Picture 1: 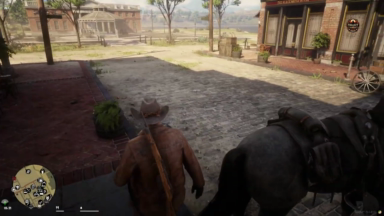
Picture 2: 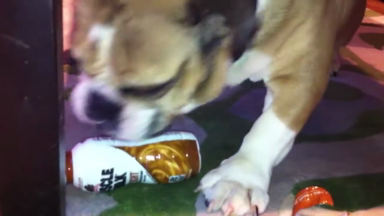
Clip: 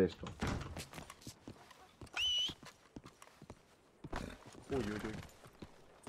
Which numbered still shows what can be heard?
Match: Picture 1